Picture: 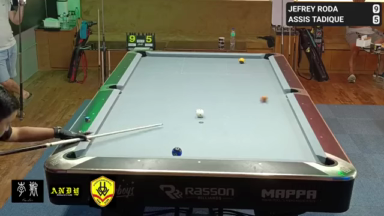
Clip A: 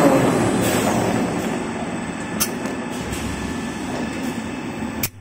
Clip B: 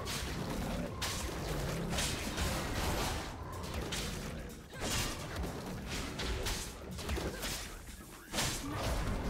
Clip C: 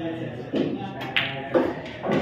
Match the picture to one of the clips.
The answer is C